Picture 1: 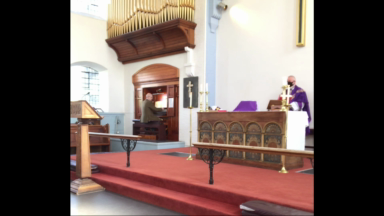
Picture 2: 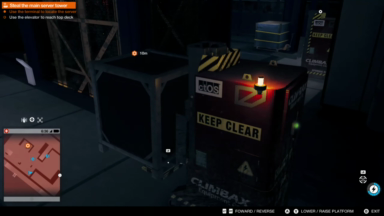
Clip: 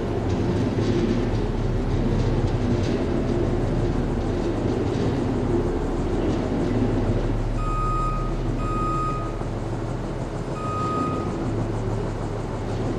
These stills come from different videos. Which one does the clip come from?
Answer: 2